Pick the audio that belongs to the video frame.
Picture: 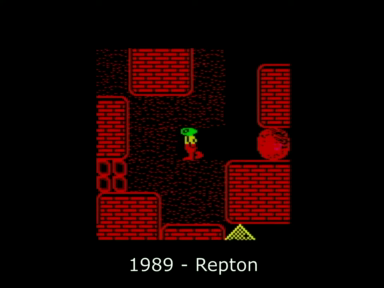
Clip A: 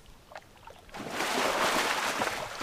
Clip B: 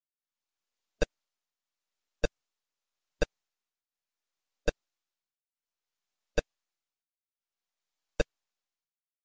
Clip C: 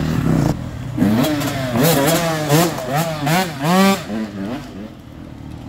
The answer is B